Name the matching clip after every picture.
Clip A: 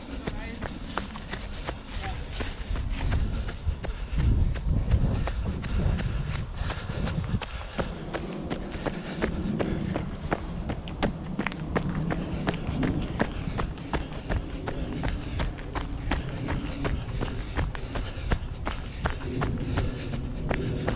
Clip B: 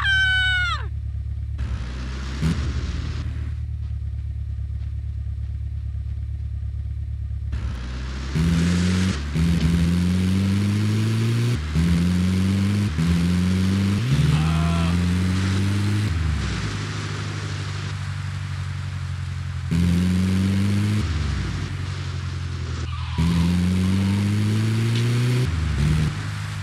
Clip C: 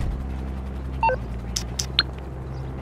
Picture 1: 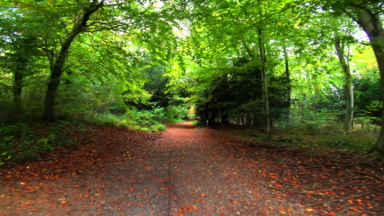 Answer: A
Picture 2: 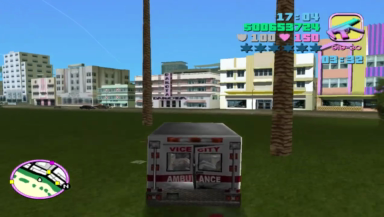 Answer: B